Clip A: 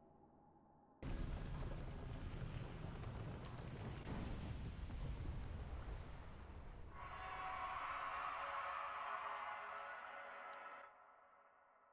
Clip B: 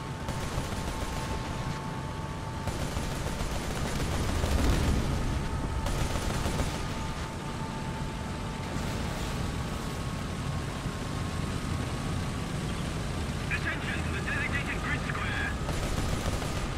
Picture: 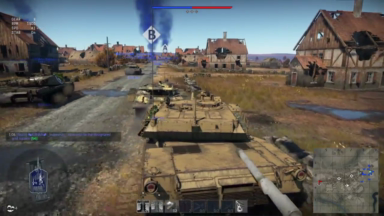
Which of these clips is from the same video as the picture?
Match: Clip B